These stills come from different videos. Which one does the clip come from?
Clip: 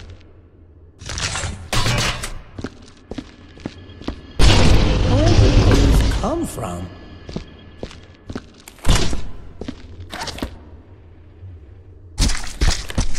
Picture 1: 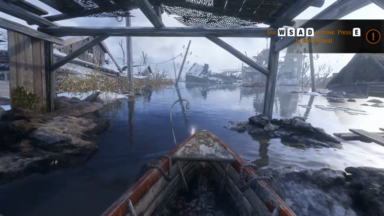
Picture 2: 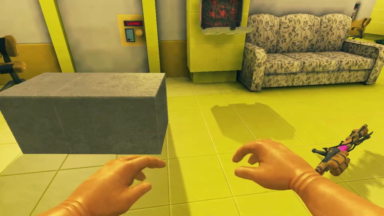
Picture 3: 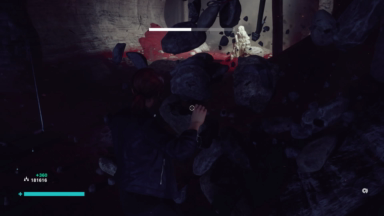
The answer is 2